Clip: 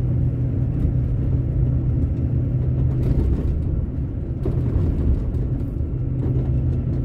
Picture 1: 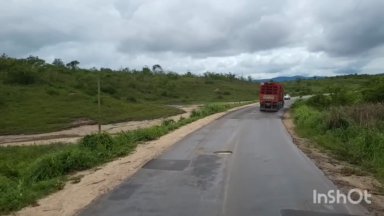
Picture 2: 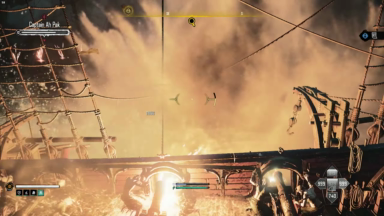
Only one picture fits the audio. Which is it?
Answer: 1